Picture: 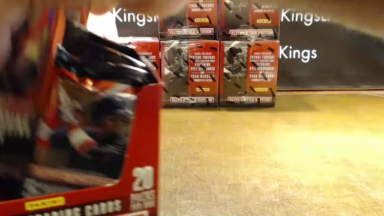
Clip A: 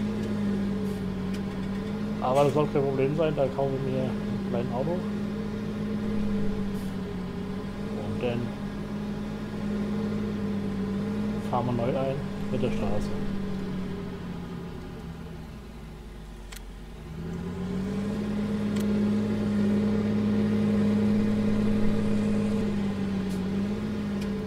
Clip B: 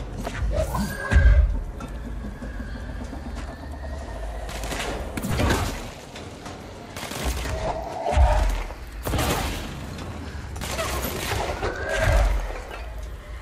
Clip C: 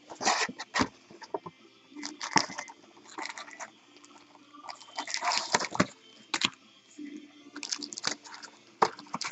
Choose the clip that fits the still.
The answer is C